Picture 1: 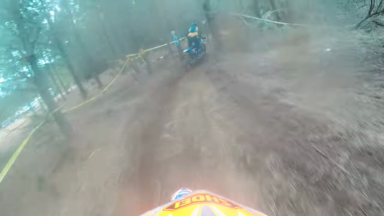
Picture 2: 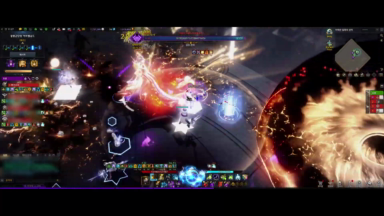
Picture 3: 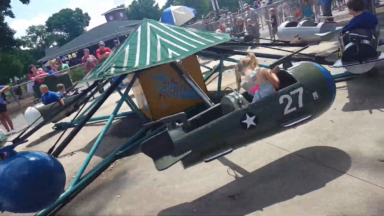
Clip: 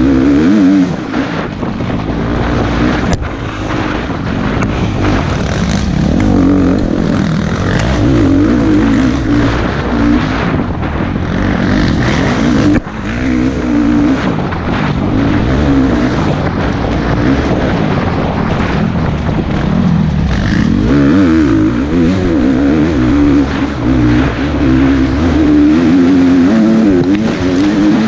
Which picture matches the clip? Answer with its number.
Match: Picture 1